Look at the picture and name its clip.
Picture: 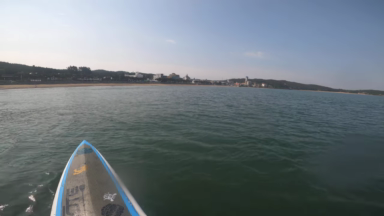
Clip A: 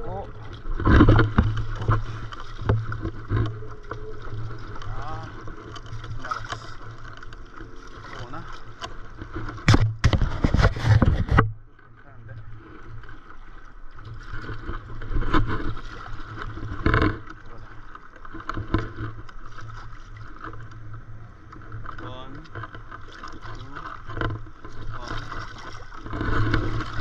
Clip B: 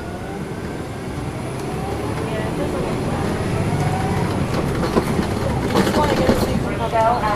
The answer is A